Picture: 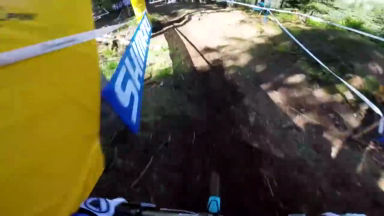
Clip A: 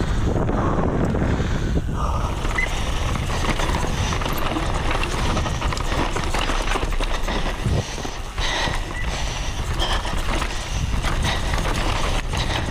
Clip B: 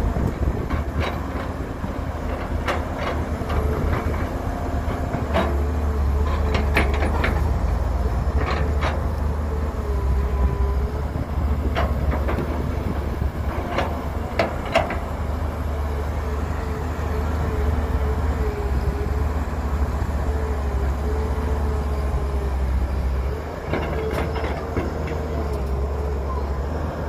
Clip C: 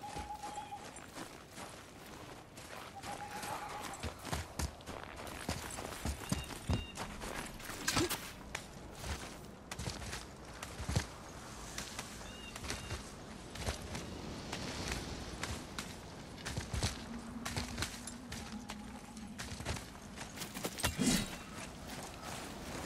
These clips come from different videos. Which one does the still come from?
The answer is A